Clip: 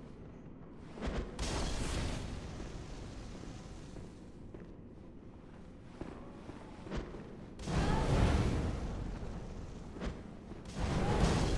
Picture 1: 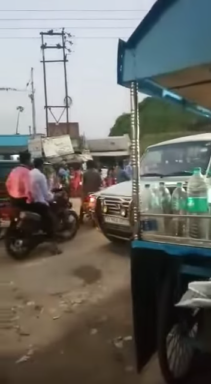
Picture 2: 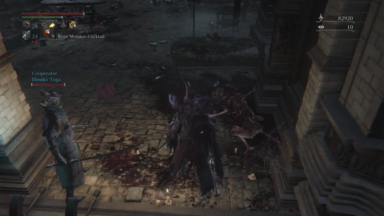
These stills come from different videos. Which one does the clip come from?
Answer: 2